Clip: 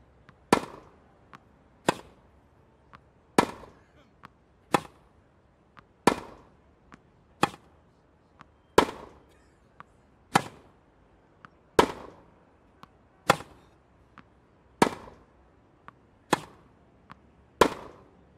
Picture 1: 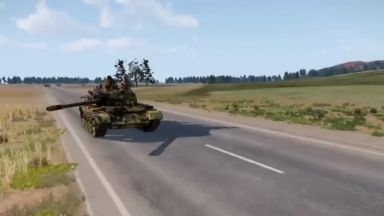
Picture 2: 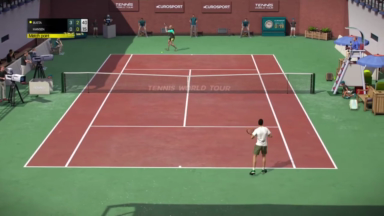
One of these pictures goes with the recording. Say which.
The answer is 2